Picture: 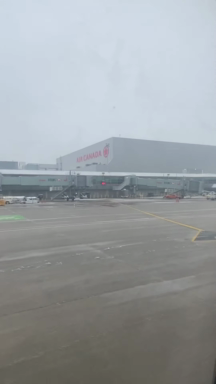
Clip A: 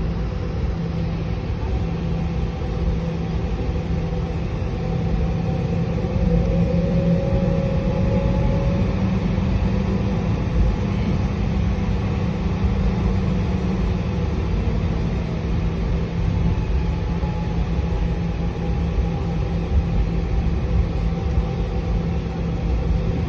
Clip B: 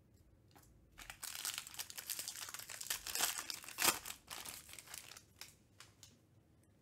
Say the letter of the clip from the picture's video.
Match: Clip A